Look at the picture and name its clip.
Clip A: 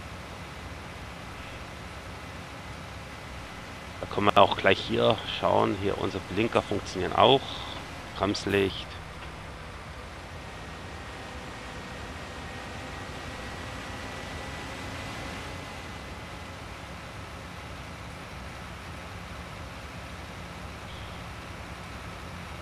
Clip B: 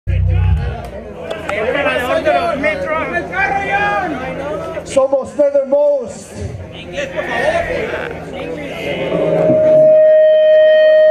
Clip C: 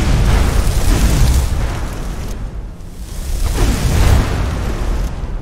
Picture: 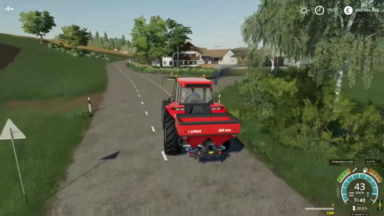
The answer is A